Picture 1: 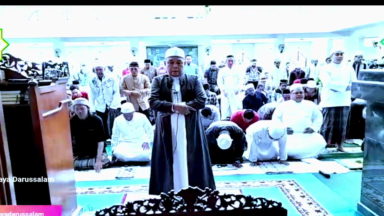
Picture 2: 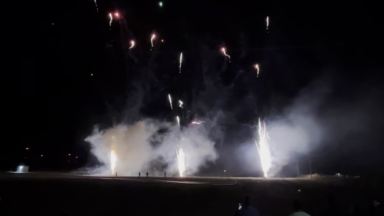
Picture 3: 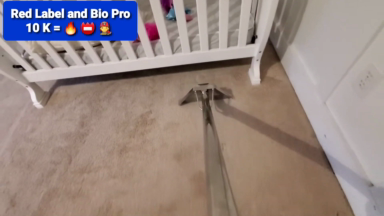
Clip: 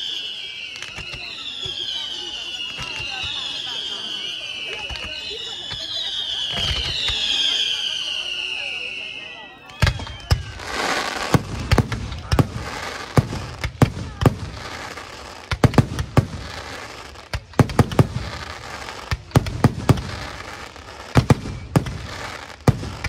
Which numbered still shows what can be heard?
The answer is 2